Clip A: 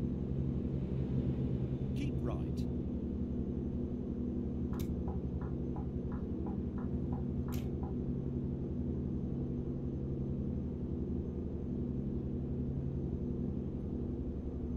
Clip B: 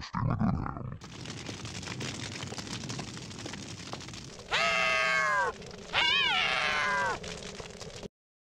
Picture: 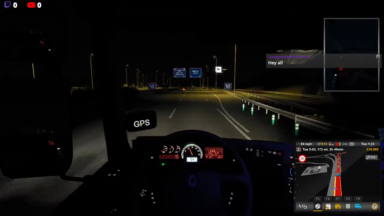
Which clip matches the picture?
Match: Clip A